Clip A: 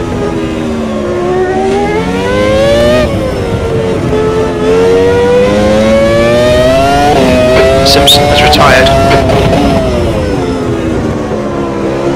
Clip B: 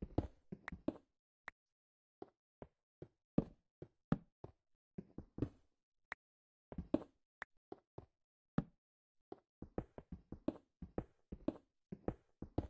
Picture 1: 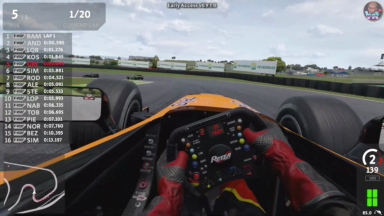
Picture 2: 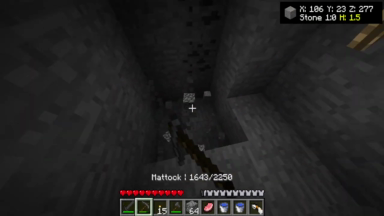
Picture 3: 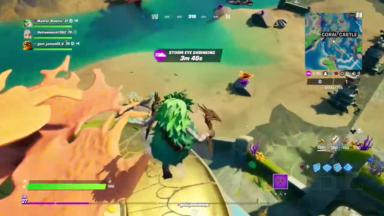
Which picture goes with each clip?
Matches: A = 1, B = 2